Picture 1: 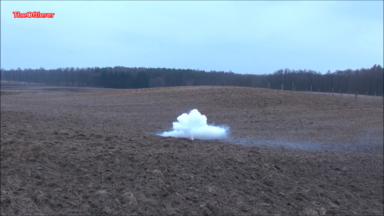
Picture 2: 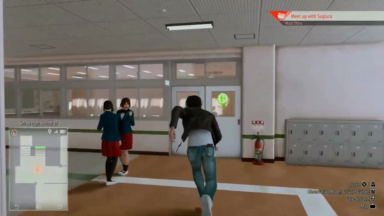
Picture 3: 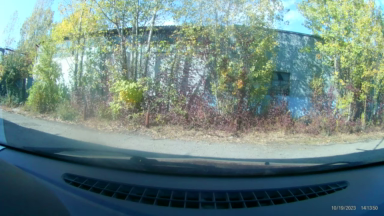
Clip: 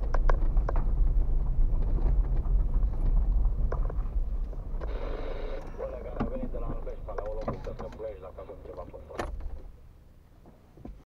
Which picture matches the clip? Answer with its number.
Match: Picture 3